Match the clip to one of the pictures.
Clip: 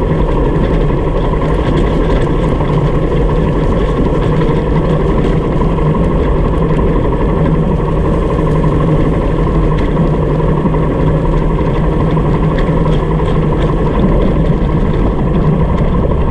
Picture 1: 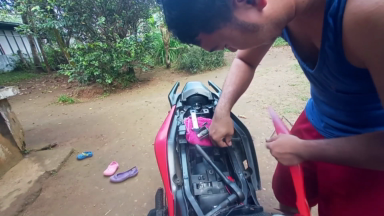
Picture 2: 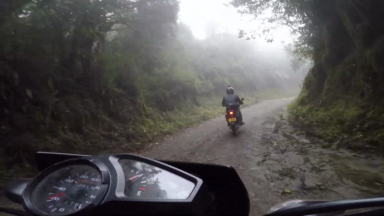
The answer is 2